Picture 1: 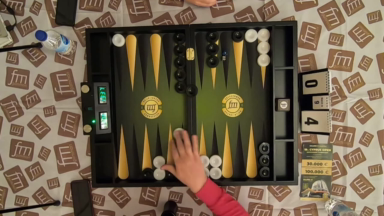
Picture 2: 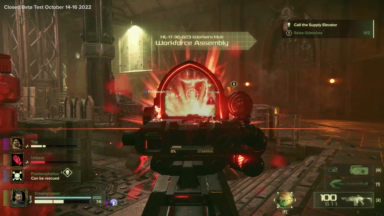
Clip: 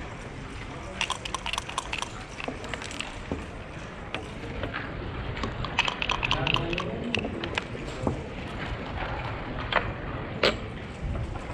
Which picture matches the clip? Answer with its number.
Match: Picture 1